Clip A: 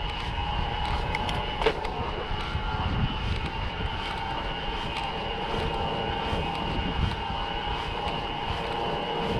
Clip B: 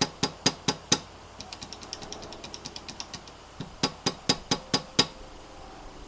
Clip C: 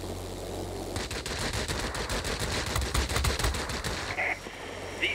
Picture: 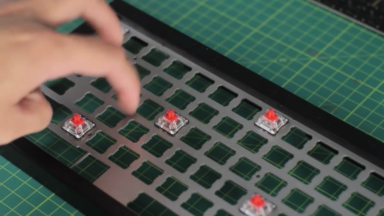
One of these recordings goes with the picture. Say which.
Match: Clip B